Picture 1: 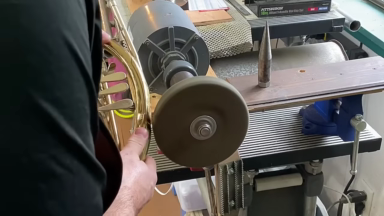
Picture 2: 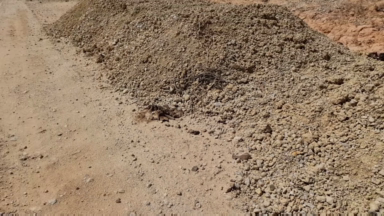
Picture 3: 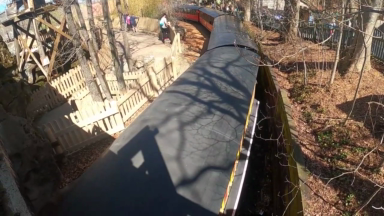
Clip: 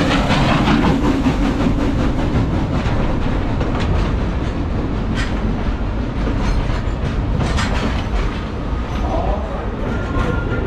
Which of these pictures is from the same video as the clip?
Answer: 3